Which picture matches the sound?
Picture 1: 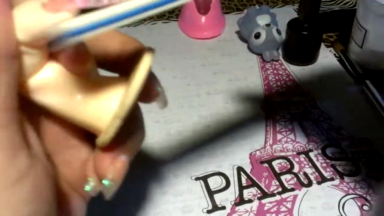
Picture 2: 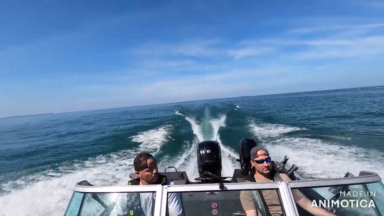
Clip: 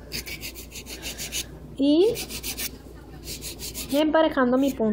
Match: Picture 1